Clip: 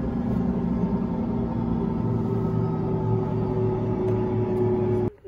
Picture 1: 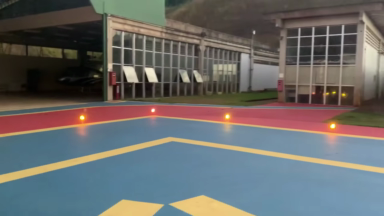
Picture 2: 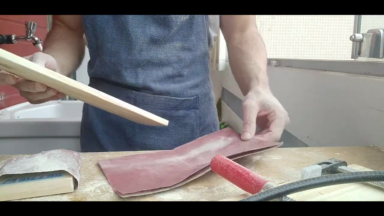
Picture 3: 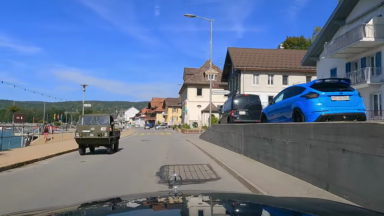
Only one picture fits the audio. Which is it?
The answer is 1